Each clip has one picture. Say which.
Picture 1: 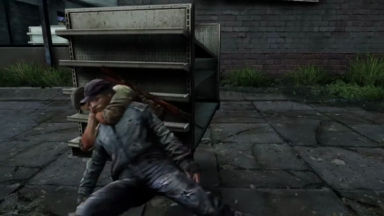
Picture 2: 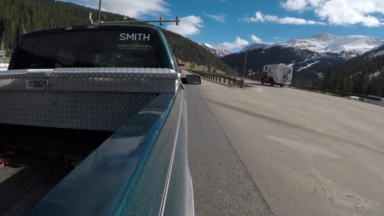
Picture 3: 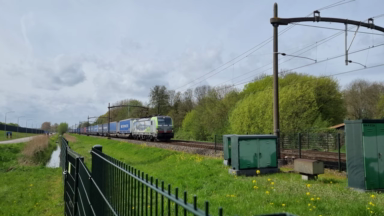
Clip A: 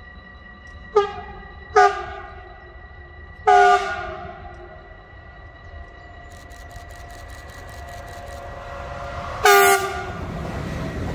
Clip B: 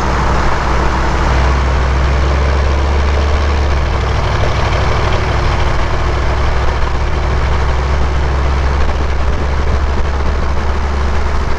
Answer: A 3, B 2